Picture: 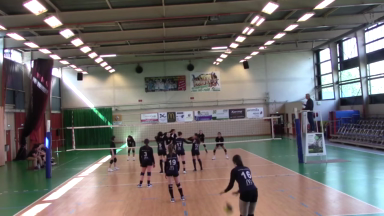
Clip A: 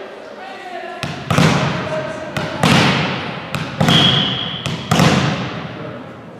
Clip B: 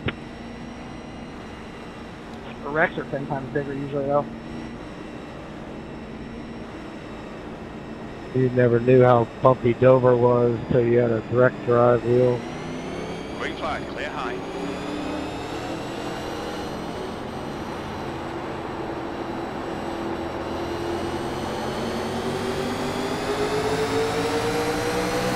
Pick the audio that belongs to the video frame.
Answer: A